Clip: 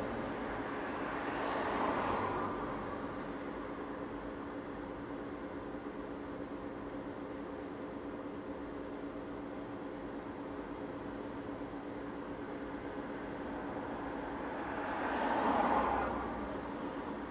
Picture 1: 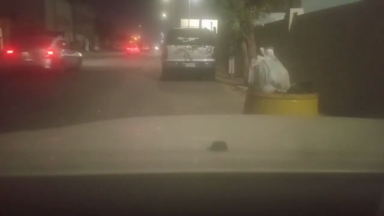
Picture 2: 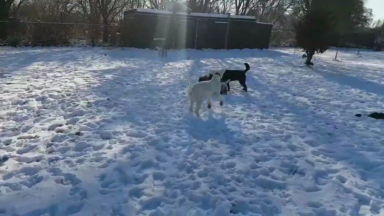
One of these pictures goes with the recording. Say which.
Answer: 1